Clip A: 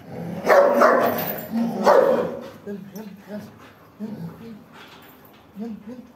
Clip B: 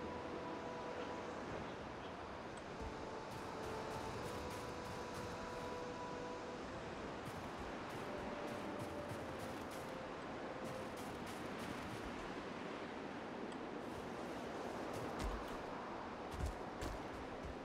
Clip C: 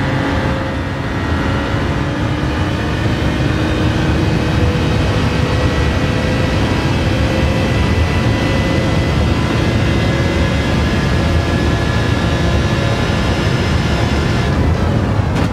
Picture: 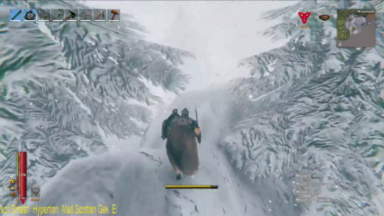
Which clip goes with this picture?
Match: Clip B